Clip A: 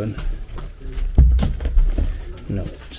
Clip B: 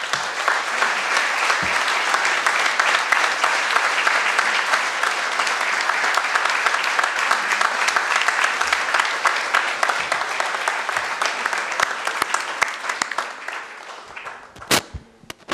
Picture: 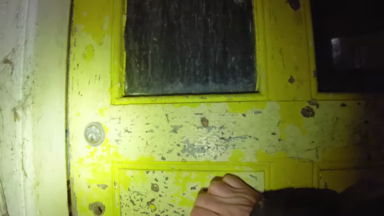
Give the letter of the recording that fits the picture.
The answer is A